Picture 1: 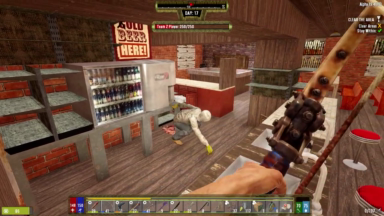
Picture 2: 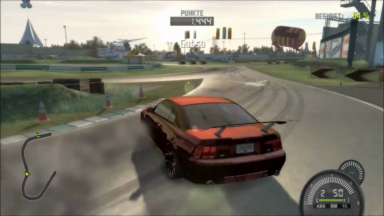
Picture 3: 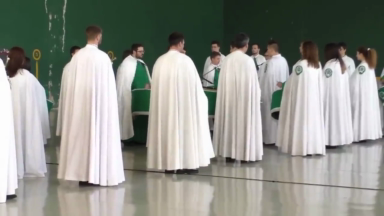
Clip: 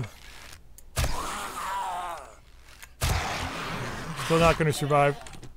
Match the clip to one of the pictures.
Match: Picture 1